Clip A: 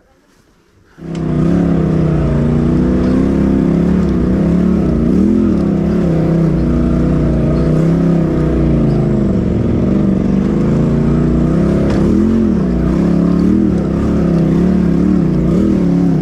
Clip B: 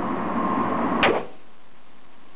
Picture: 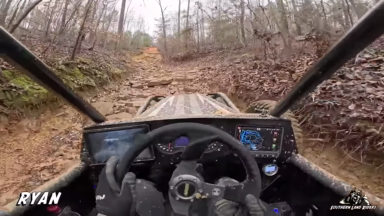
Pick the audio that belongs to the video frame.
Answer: A